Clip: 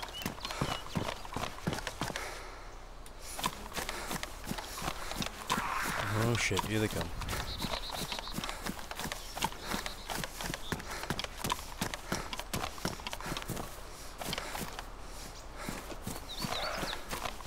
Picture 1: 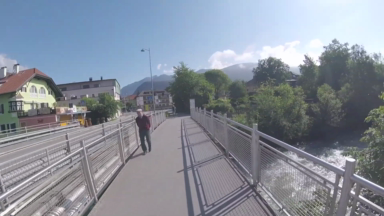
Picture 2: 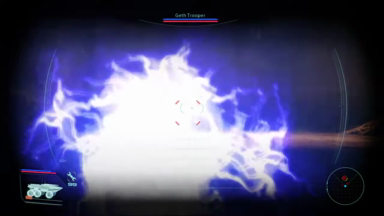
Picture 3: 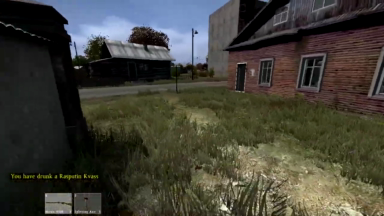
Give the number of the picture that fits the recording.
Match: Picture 3